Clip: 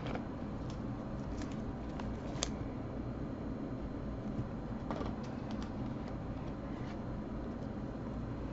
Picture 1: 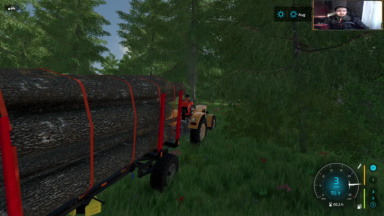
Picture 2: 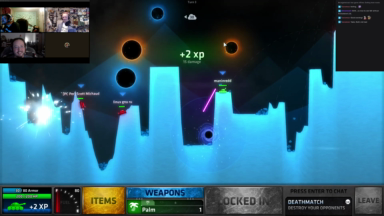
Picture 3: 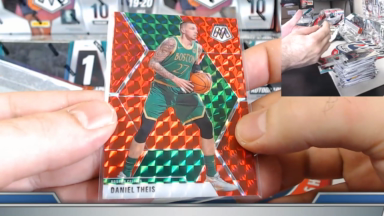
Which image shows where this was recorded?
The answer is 3